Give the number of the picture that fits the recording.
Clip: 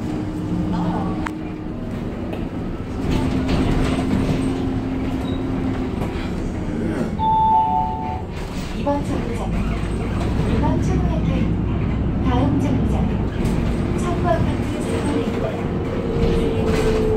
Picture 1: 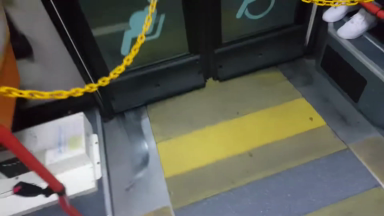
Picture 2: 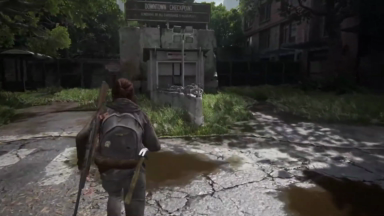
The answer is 1